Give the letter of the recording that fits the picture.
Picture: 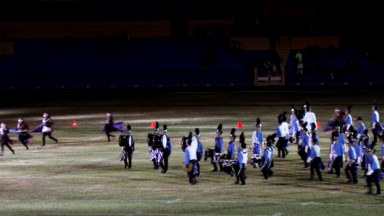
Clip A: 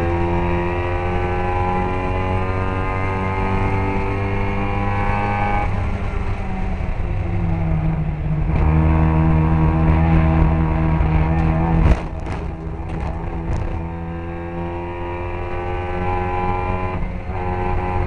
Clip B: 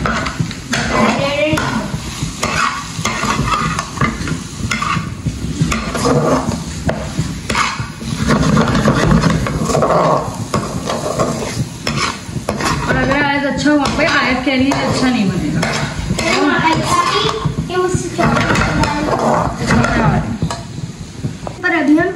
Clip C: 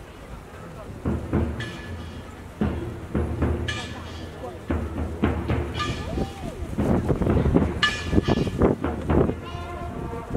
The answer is C